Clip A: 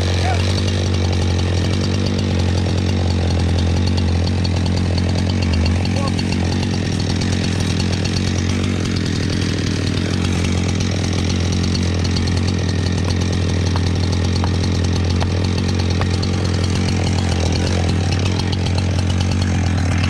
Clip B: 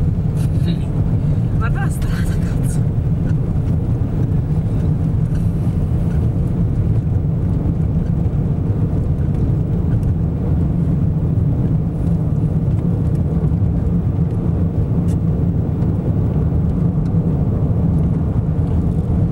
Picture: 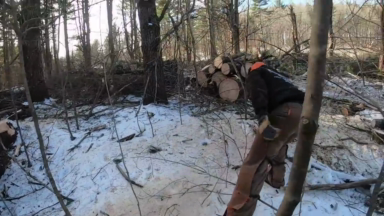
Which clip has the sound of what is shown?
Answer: A